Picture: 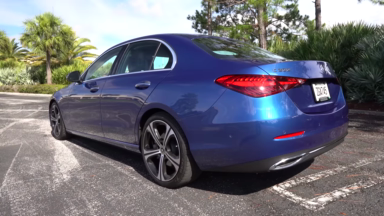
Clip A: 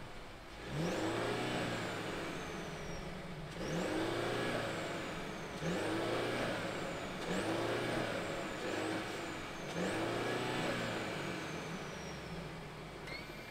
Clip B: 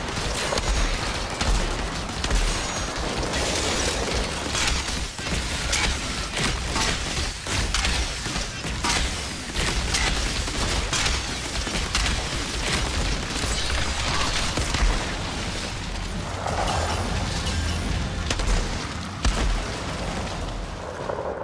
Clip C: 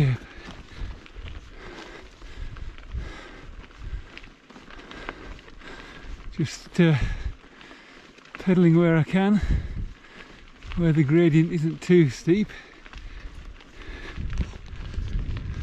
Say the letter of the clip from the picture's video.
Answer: A